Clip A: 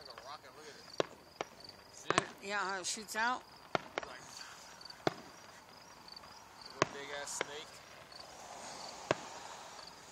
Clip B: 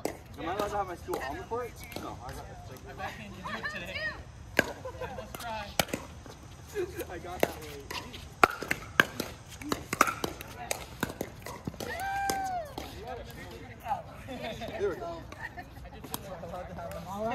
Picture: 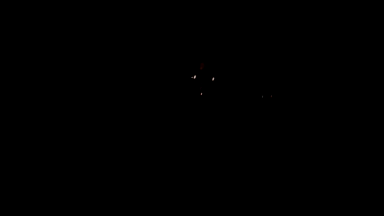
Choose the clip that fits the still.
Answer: A